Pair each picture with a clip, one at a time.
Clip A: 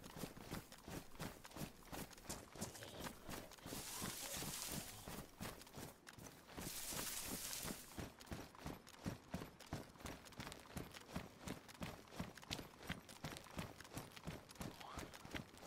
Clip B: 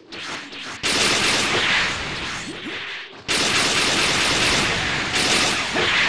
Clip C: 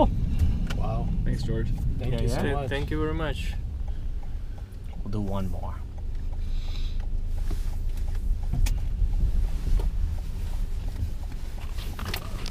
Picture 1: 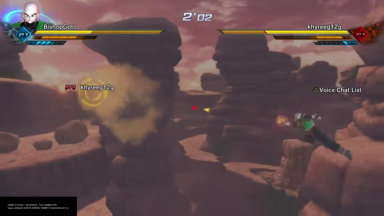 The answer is B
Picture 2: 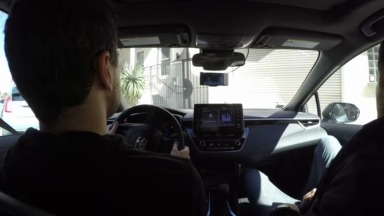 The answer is C